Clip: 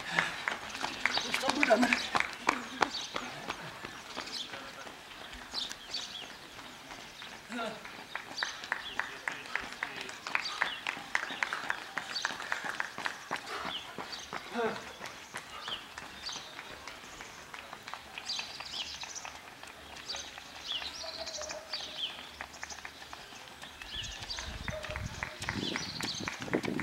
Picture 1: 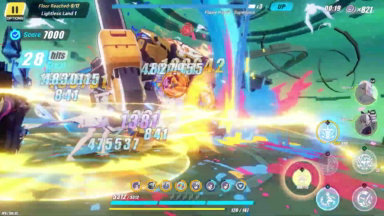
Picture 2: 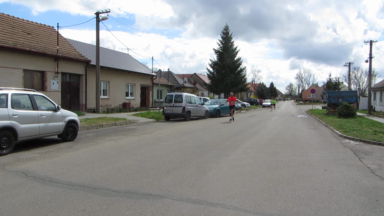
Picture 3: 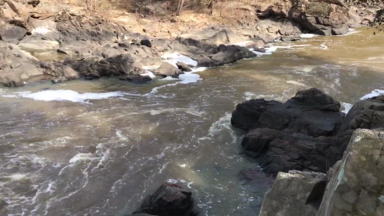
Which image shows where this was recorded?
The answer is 2